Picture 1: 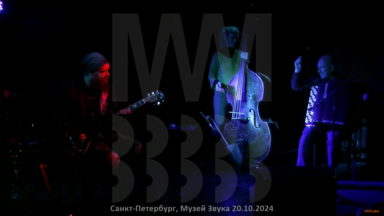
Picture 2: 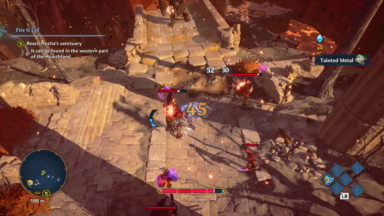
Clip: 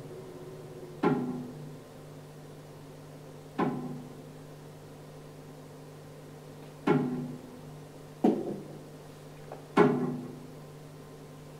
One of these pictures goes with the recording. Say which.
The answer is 1